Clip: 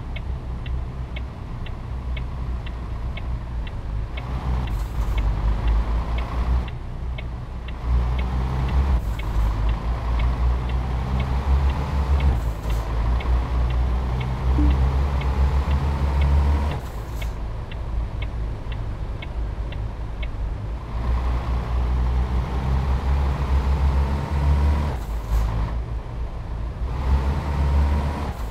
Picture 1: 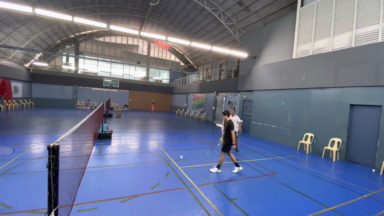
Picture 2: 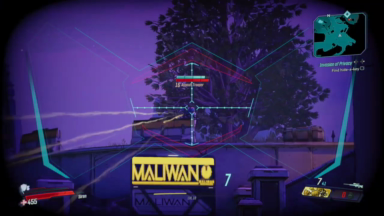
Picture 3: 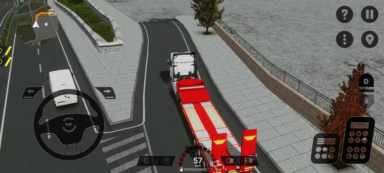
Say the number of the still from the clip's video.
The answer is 3